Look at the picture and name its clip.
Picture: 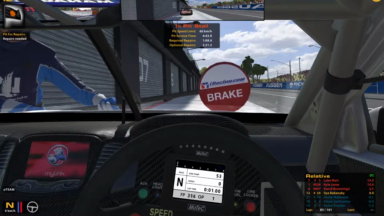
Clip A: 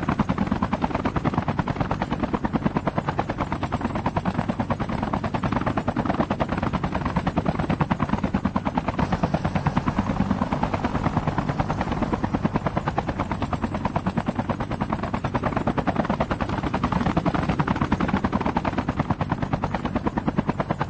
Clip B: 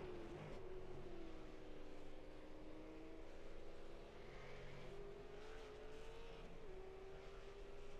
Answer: B